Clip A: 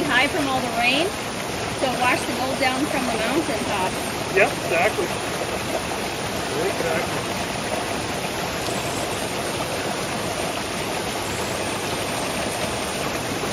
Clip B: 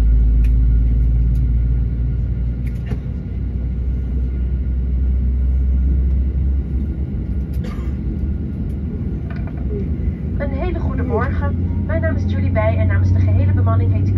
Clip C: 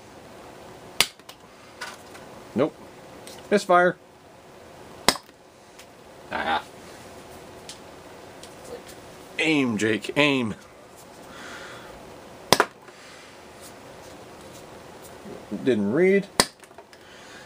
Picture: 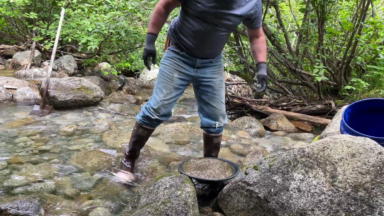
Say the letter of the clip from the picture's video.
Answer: A